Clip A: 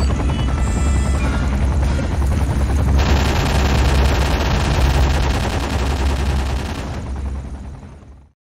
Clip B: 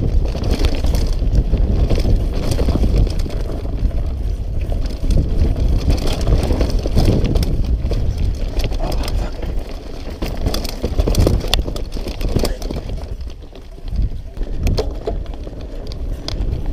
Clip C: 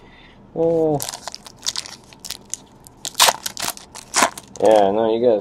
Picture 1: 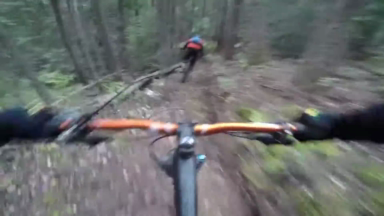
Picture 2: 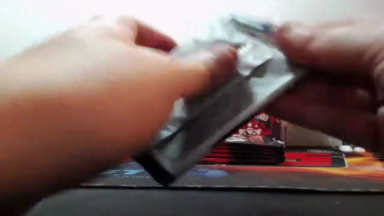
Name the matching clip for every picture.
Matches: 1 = B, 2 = C